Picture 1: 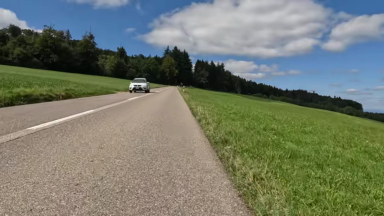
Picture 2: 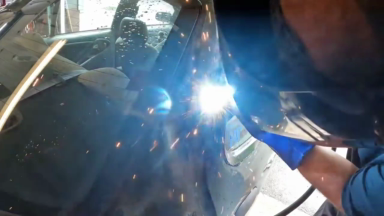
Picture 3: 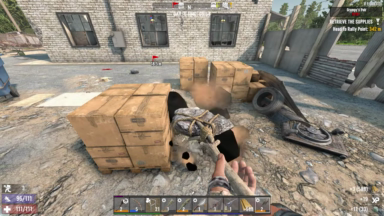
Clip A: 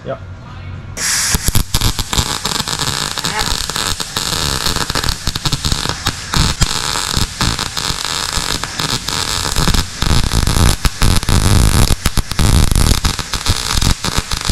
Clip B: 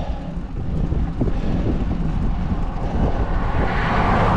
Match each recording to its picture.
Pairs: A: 2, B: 1